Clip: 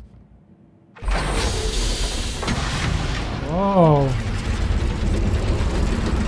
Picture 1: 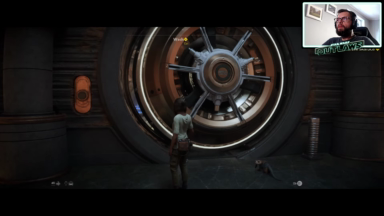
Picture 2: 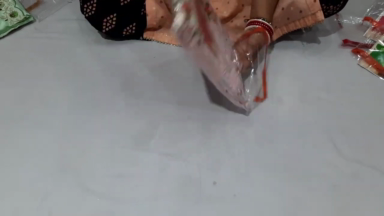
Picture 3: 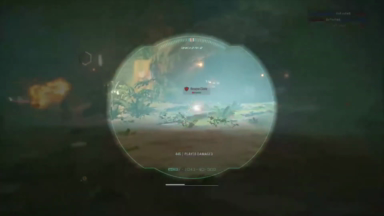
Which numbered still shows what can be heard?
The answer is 1